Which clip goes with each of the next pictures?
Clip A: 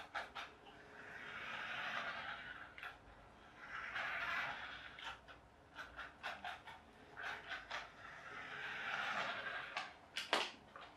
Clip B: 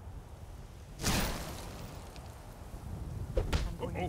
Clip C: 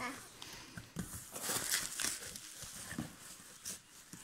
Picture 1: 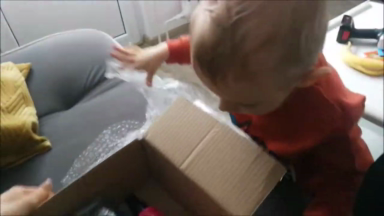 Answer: C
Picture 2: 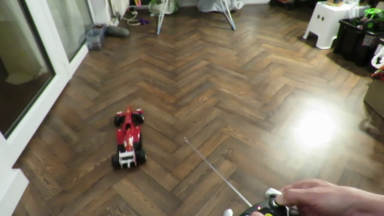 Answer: A